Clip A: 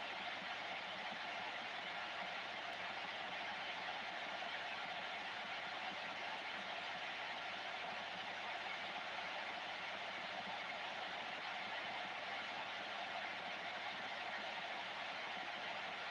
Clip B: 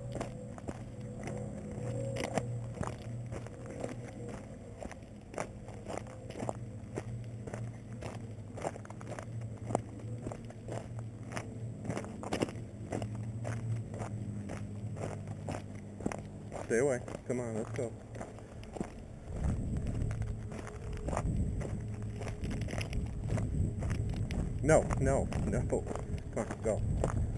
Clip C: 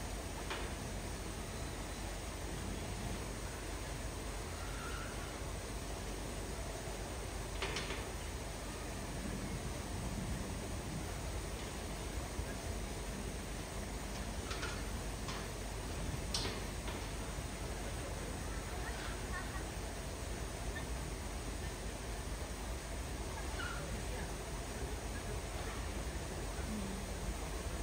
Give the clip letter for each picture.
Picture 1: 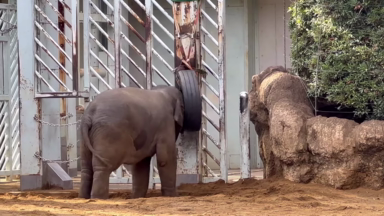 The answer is C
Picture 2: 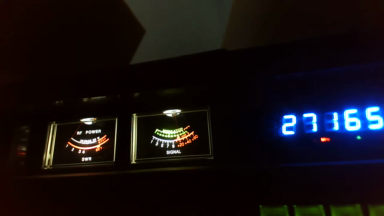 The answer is A